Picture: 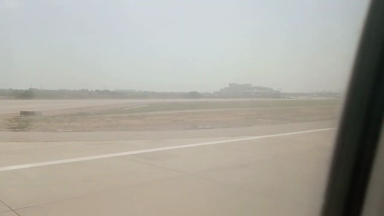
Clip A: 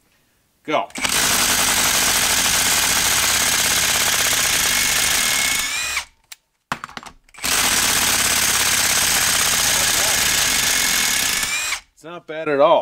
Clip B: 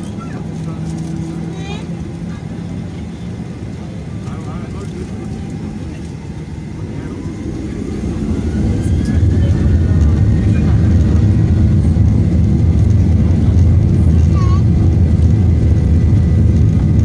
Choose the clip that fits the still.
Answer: B